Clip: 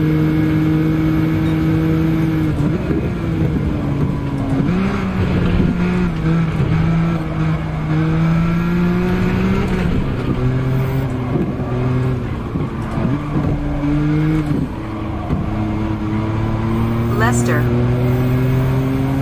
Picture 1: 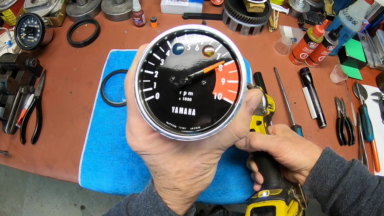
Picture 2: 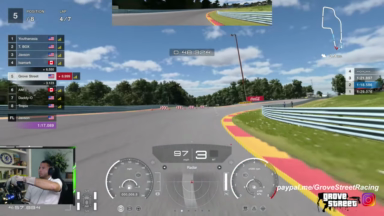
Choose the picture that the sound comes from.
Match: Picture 2